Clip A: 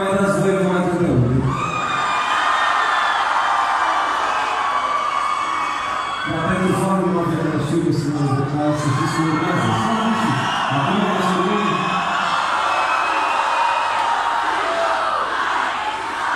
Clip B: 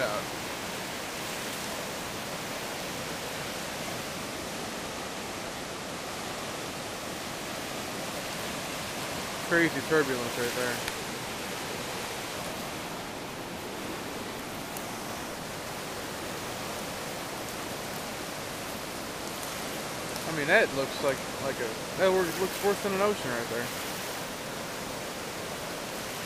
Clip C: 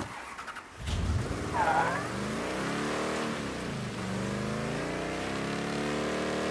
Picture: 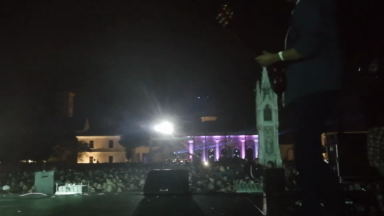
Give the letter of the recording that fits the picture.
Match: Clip A